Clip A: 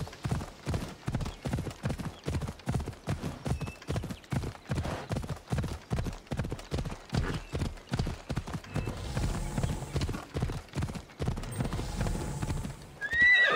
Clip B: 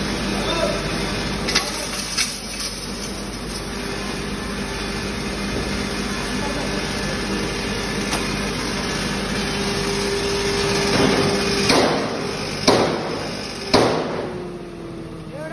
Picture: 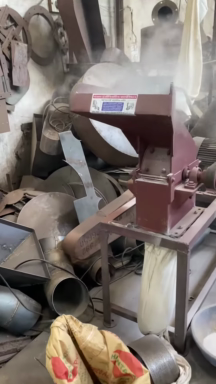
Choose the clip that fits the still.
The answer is B